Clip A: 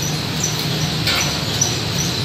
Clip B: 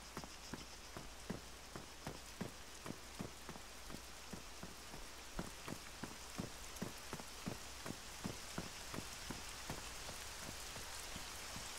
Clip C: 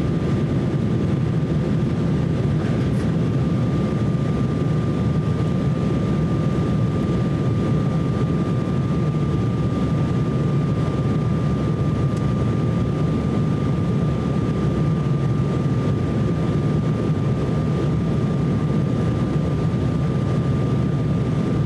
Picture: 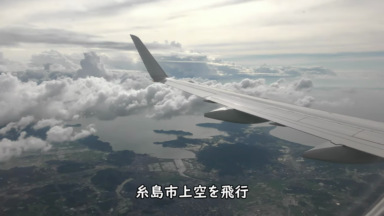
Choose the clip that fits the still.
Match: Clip C